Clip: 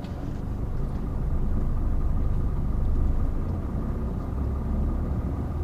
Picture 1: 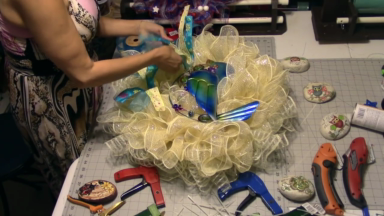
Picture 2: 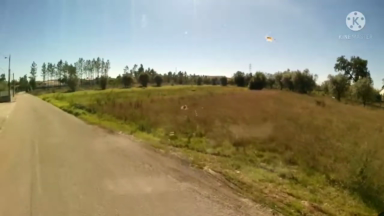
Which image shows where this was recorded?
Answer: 2